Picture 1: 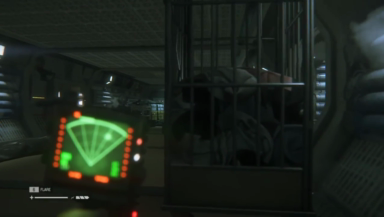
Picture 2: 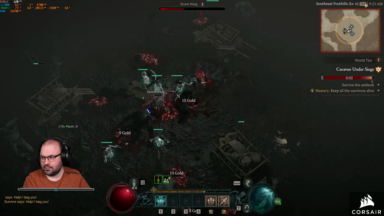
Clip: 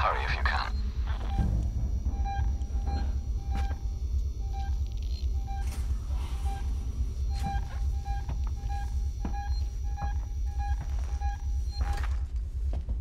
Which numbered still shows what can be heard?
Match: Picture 1